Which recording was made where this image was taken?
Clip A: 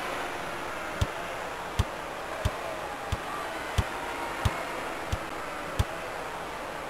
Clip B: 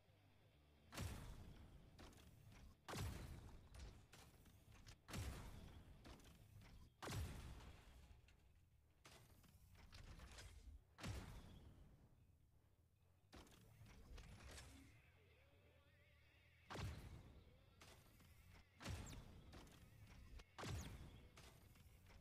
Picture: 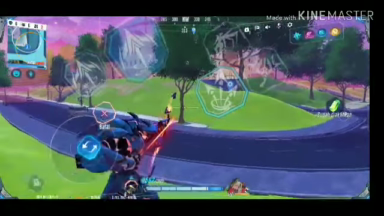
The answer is B